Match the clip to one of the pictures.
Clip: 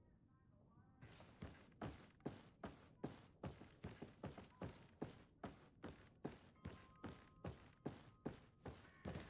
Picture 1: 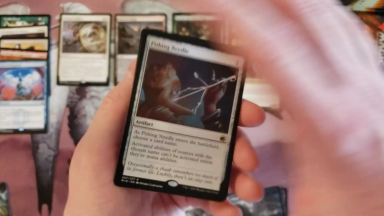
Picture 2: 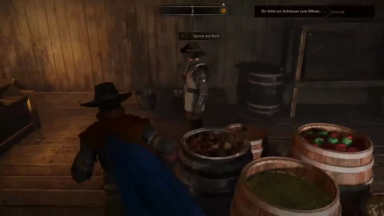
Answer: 2